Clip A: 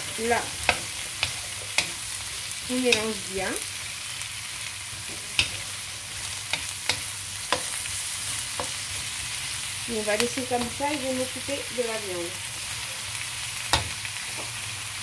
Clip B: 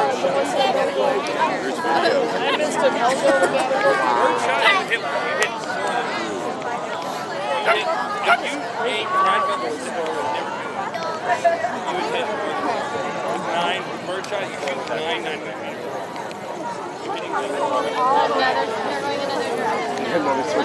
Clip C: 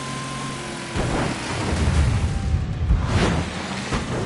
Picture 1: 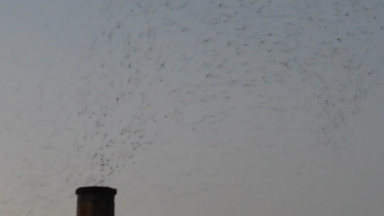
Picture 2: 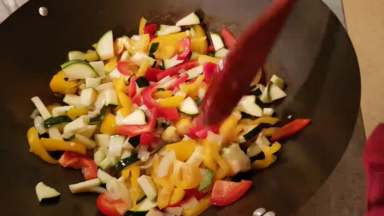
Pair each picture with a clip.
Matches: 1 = B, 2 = A